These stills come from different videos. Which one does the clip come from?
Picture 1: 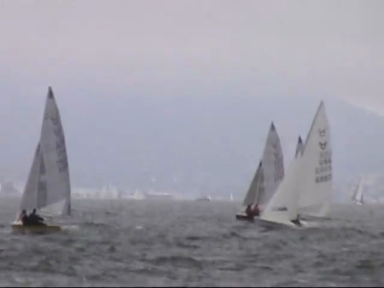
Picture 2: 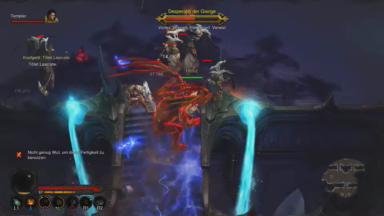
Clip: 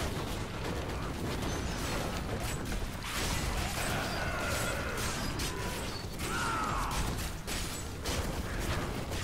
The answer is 2